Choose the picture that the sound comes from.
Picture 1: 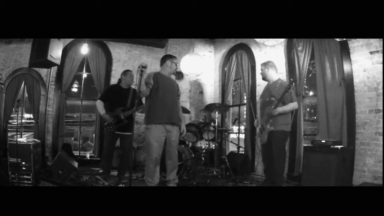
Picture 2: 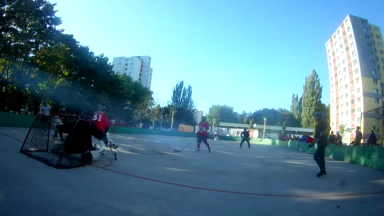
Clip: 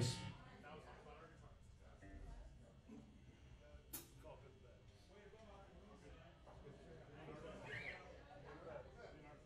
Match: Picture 1